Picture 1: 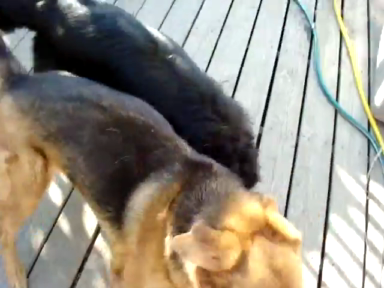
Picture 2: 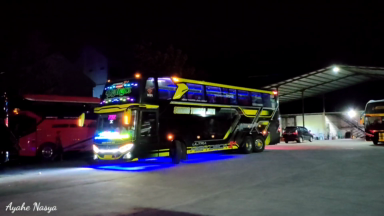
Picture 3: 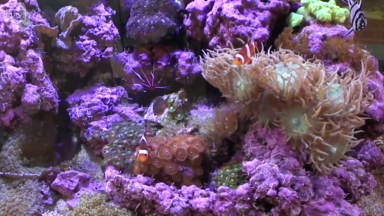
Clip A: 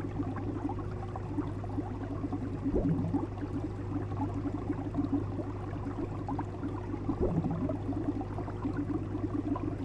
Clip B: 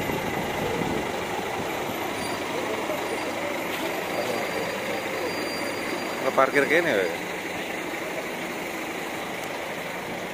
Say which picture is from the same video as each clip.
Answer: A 3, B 2